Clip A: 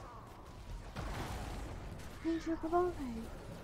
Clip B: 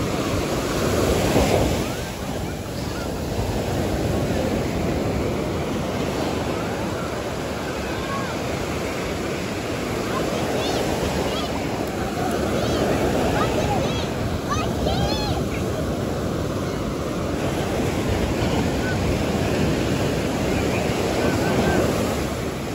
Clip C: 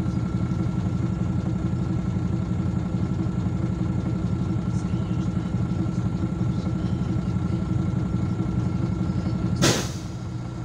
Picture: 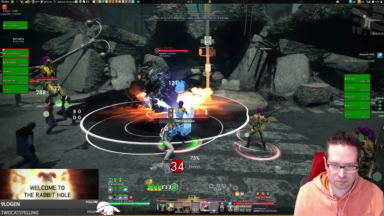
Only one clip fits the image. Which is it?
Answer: A